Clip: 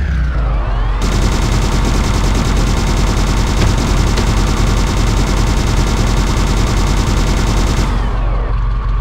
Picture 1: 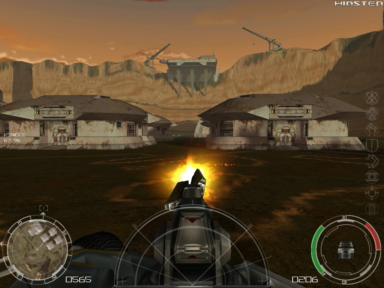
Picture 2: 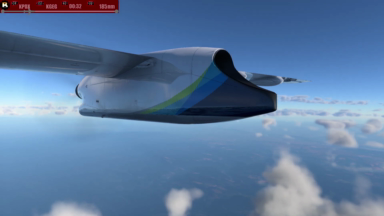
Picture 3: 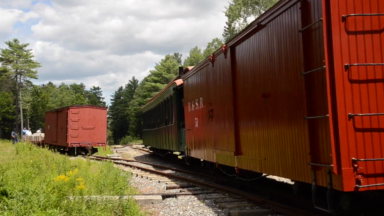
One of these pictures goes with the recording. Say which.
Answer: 1